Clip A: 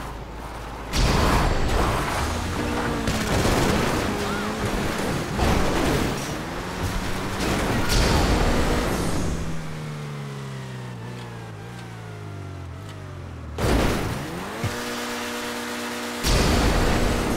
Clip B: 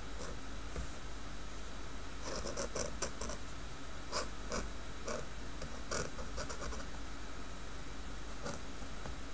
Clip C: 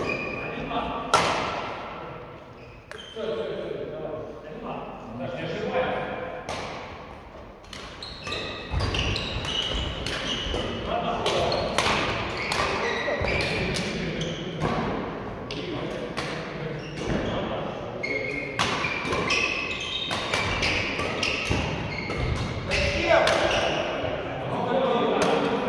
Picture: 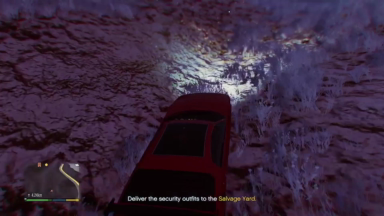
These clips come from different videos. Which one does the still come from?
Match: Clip A